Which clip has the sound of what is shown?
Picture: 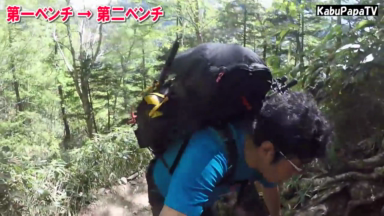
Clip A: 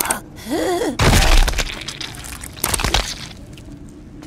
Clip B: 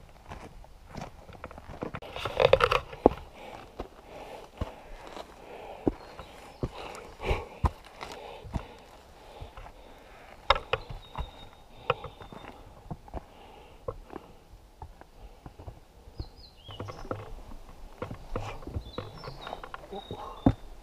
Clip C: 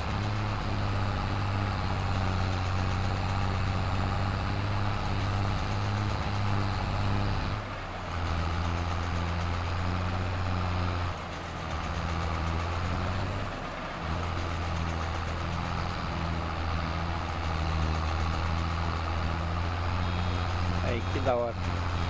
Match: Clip B